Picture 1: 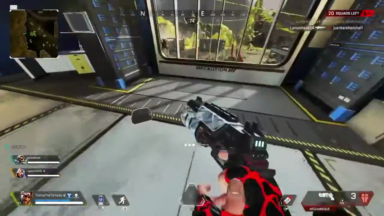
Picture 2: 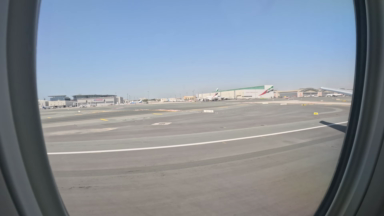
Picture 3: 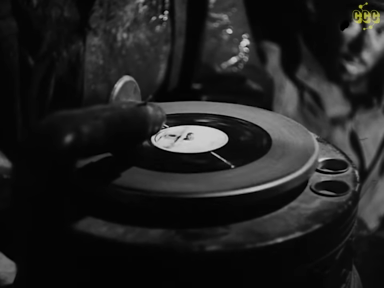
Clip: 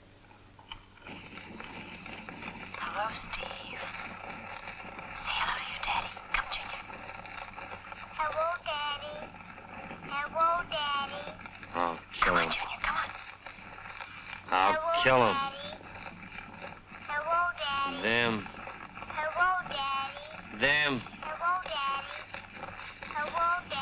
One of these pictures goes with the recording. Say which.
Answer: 3